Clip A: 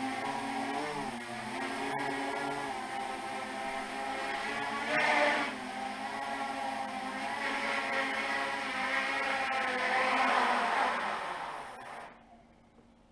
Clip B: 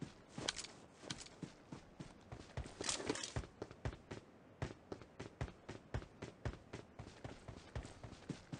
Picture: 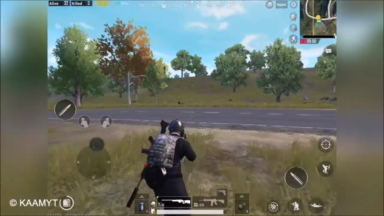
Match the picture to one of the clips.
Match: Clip B